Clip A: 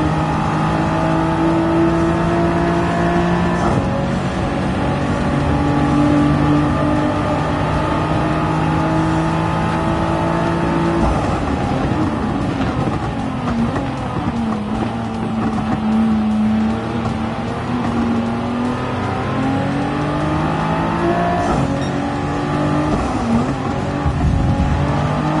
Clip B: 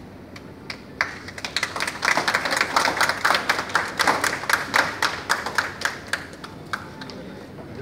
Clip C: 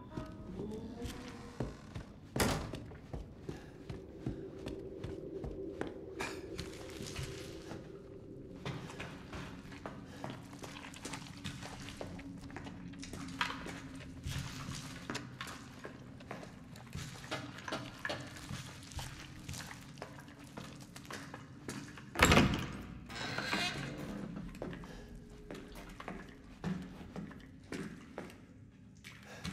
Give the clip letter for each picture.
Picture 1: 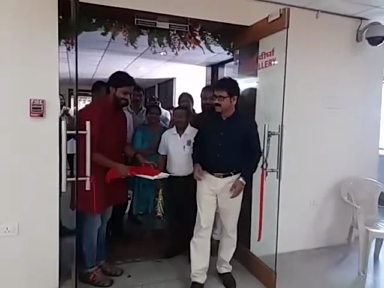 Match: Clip B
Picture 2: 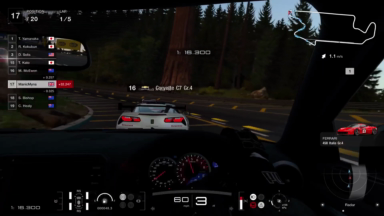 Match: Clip A